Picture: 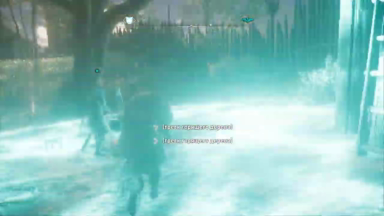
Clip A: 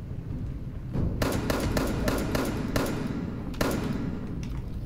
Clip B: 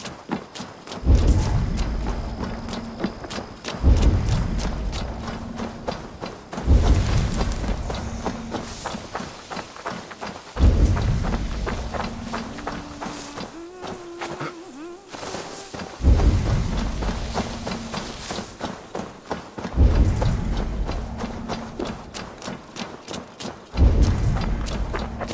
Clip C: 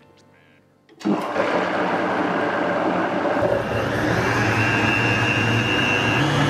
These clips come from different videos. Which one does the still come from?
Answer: B